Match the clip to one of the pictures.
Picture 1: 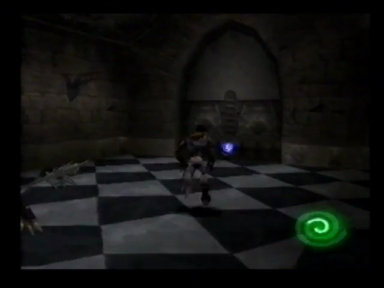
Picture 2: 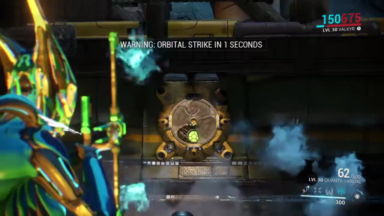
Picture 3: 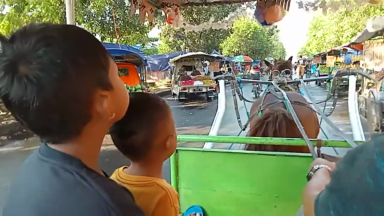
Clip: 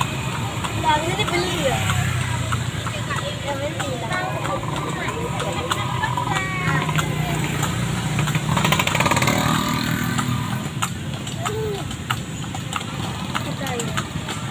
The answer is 3